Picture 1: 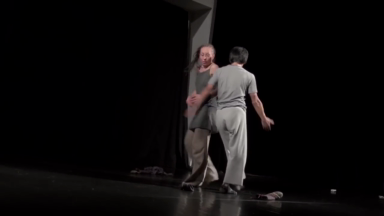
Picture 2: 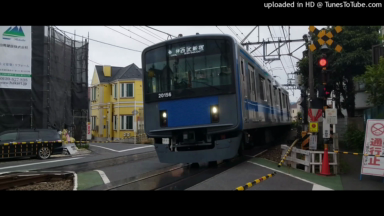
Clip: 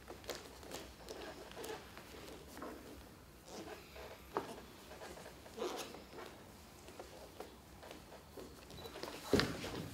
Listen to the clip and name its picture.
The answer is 1